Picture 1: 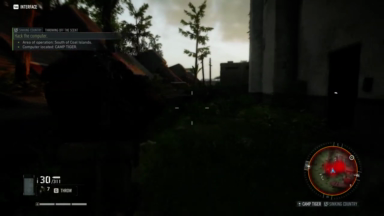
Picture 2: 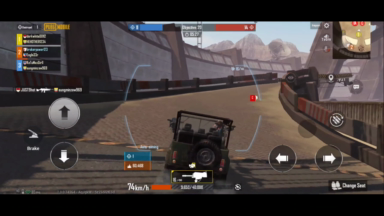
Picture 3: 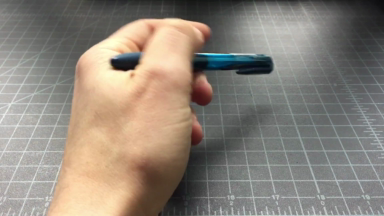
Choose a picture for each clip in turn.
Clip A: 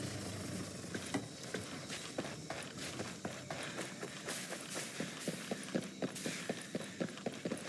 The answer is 1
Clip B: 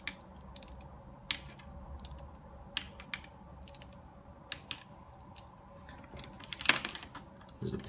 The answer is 3